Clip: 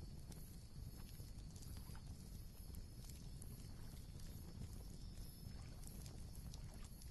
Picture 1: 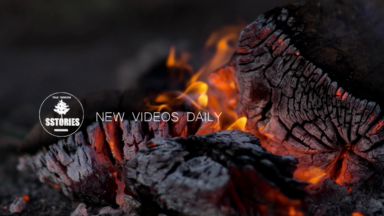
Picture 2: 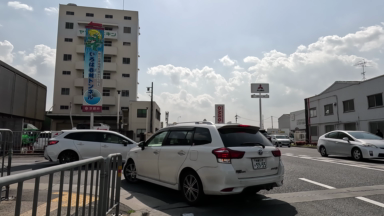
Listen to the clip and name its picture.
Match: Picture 1